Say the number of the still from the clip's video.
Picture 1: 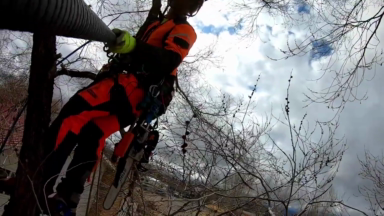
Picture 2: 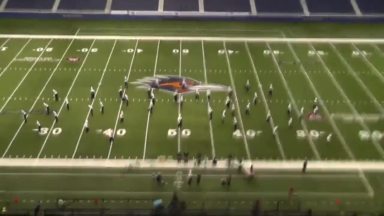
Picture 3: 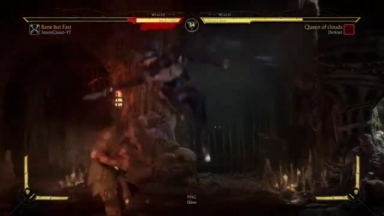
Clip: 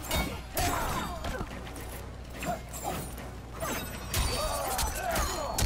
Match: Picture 3